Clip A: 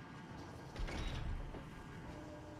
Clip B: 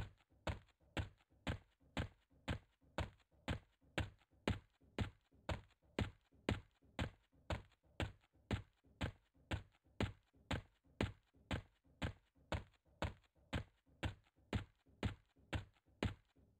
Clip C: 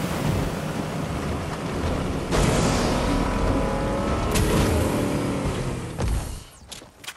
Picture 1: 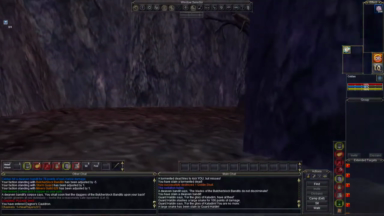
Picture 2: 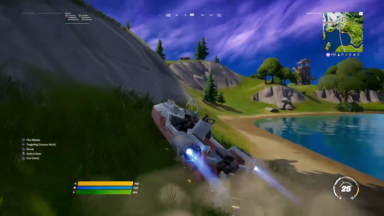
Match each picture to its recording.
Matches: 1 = B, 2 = C